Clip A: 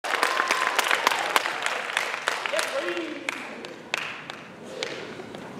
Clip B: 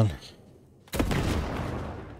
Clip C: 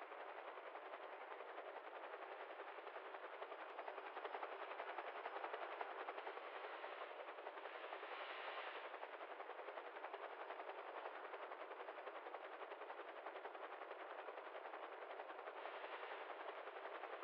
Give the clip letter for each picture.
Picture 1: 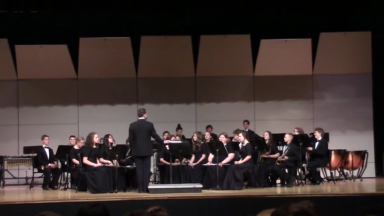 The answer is A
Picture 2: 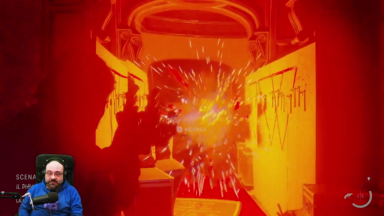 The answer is B